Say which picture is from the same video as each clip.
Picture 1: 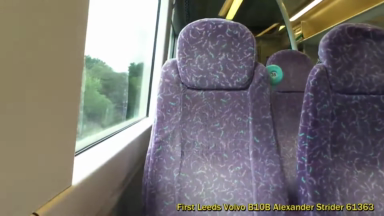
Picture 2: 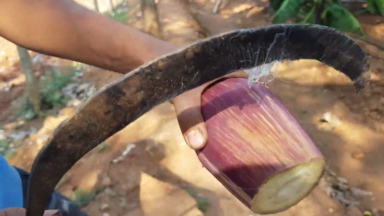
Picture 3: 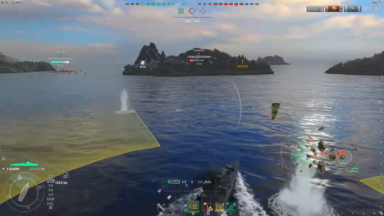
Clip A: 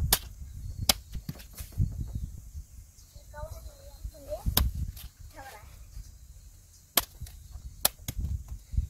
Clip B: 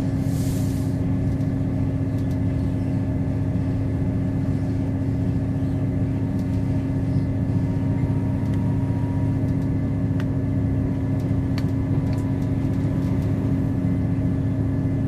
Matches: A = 2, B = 1